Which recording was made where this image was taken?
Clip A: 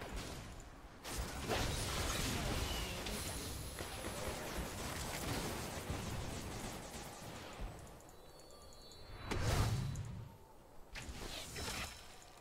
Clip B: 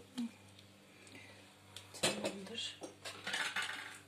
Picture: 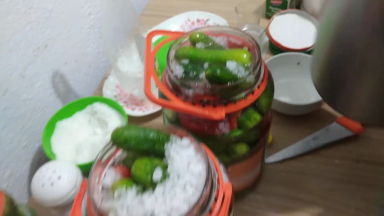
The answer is B